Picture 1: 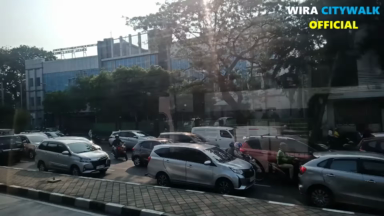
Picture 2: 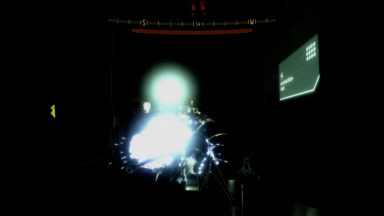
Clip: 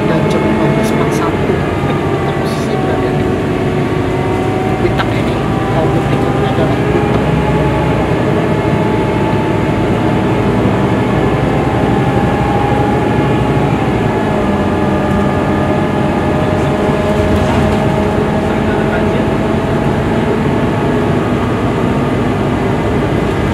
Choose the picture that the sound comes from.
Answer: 1